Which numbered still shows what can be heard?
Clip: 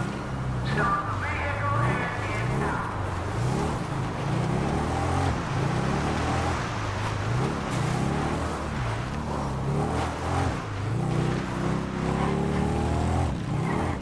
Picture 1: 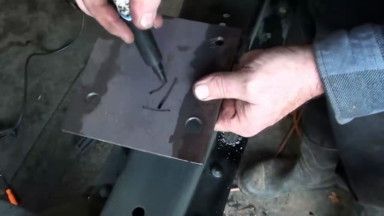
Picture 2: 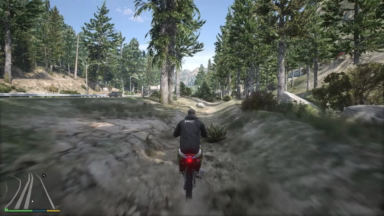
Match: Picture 2